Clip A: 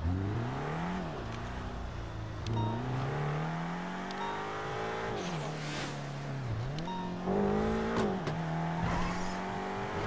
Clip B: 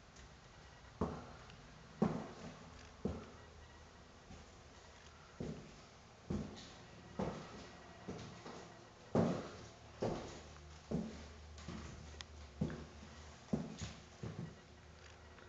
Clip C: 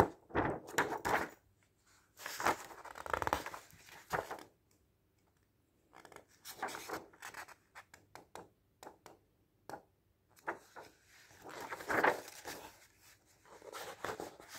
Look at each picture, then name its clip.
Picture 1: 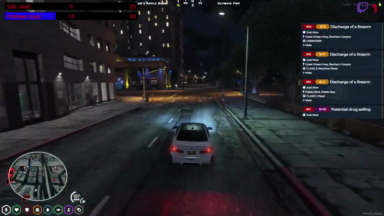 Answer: A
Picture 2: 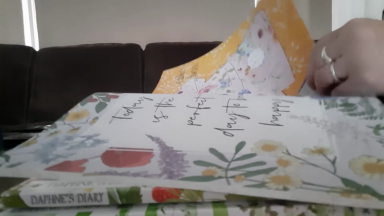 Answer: C